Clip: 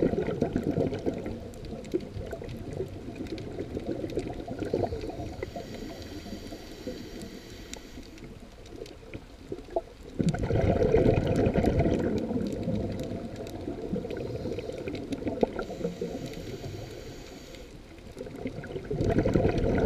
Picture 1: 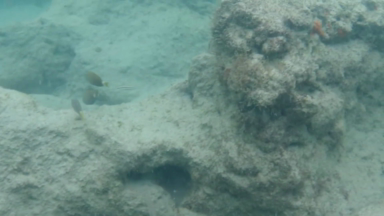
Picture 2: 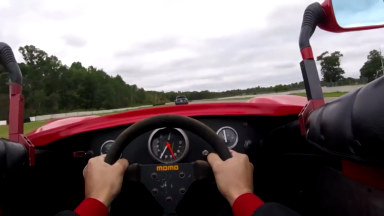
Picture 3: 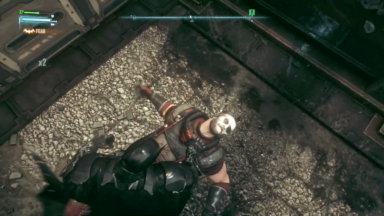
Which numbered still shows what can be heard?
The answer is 1